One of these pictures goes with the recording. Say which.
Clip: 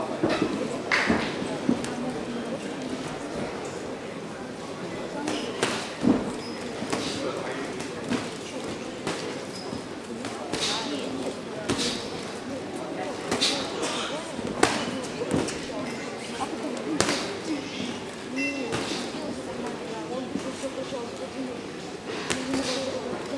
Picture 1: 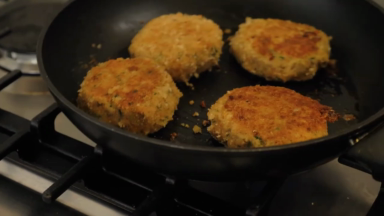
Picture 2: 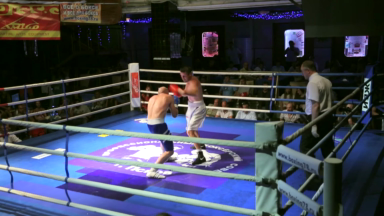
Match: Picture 2